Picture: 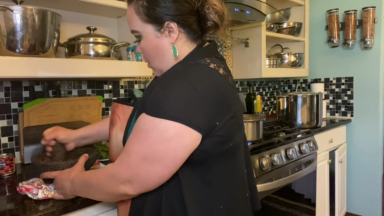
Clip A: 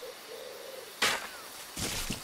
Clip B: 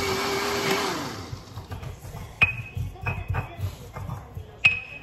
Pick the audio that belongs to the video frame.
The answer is B